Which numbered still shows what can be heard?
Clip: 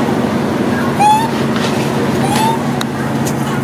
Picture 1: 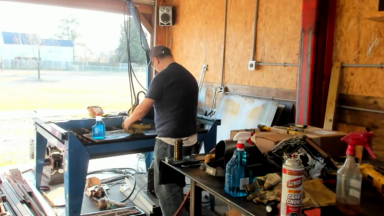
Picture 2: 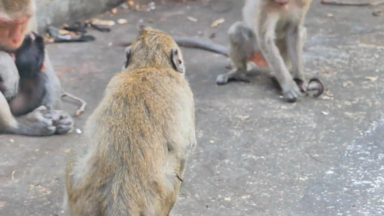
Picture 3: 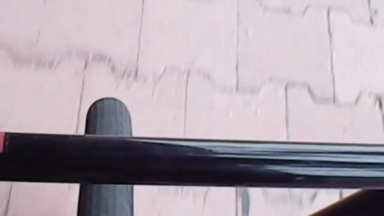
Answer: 2